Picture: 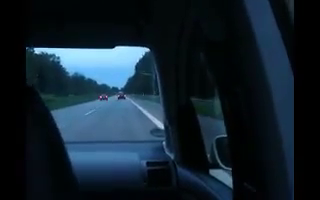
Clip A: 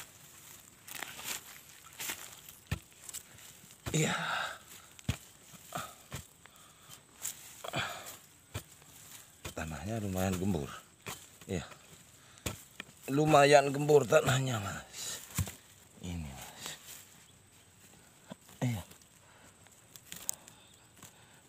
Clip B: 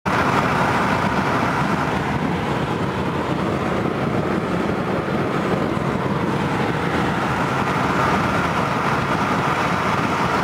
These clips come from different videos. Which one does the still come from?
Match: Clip B